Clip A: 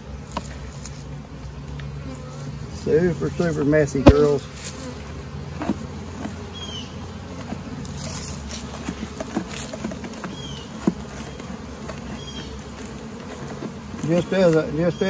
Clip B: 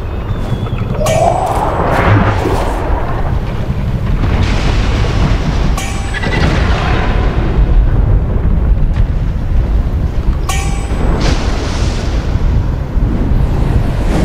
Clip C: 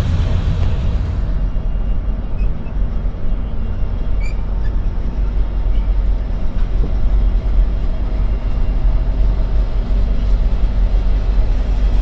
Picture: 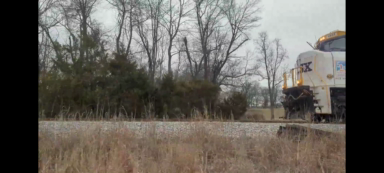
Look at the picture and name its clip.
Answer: C